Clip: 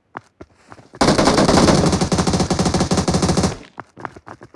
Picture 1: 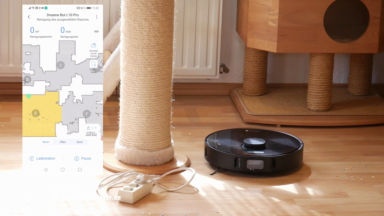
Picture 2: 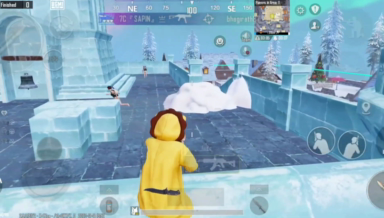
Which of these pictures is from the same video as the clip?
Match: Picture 2